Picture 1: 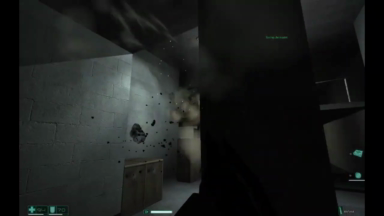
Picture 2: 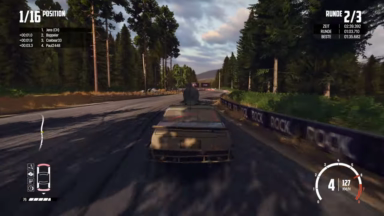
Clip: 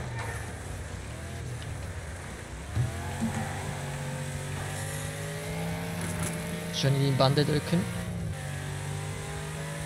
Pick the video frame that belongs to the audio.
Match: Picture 2